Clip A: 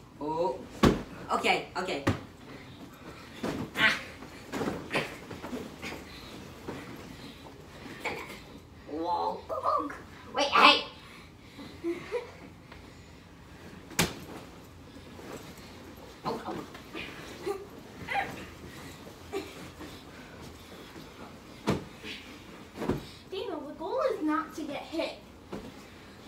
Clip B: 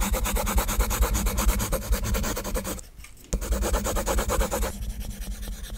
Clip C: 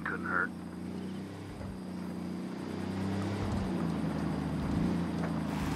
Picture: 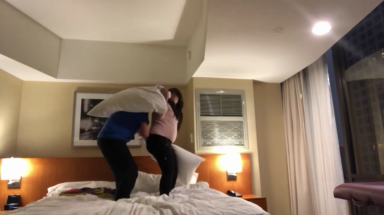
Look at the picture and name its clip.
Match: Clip A